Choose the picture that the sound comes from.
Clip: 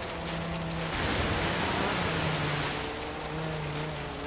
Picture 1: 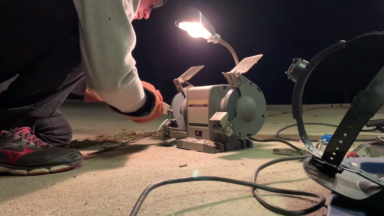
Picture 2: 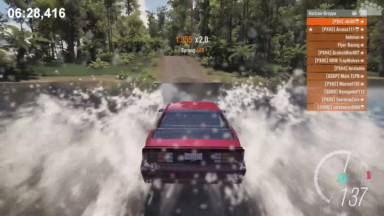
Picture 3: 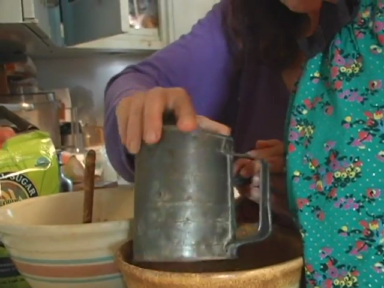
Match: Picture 2